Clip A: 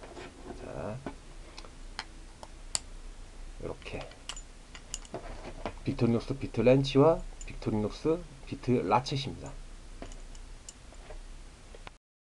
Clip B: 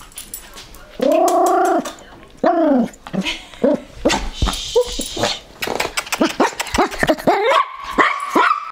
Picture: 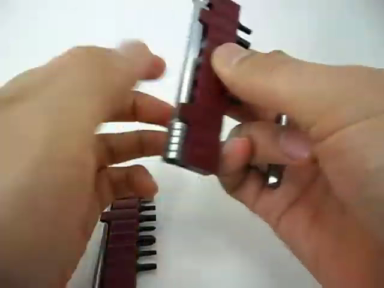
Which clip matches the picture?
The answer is A